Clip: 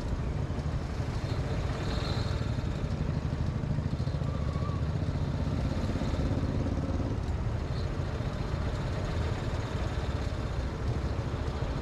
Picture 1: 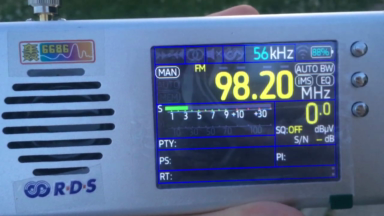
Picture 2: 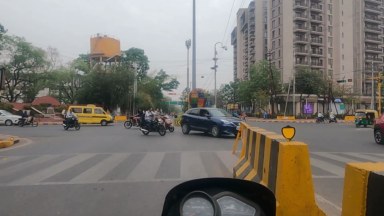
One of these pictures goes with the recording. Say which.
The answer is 2